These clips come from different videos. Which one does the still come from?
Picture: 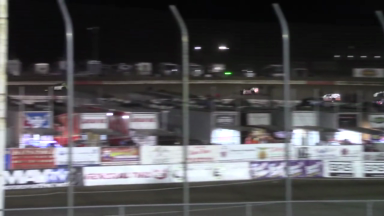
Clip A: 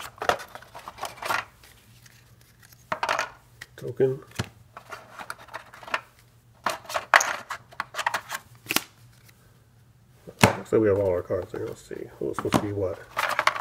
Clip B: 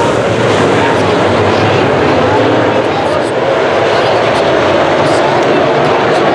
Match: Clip B